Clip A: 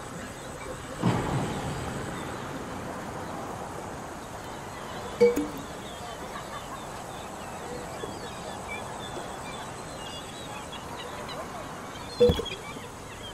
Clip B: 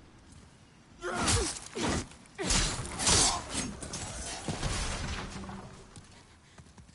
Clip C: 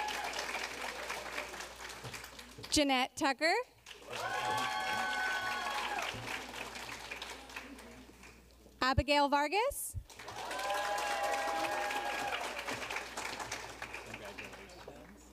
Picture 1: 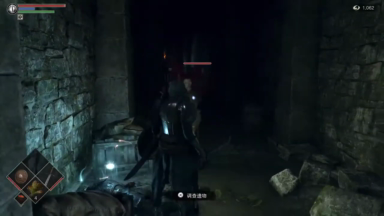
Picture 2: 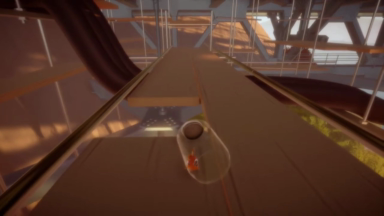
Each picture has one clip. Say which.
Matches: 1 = B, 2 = A